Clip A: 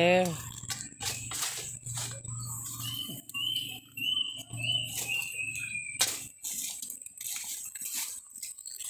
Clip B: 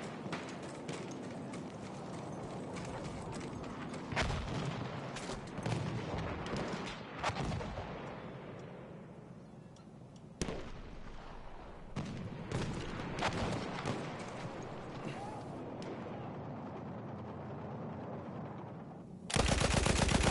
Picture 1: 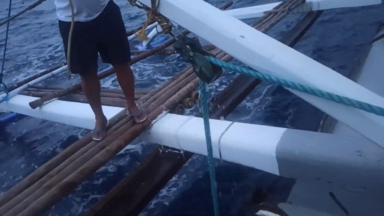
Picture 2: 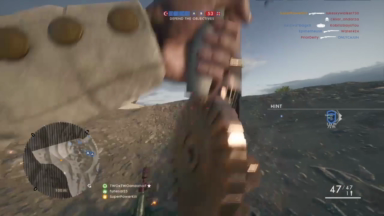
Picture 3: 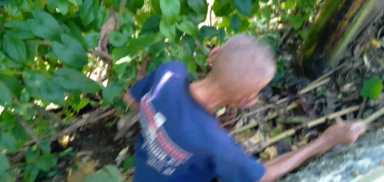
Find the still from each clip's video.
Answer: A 3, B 2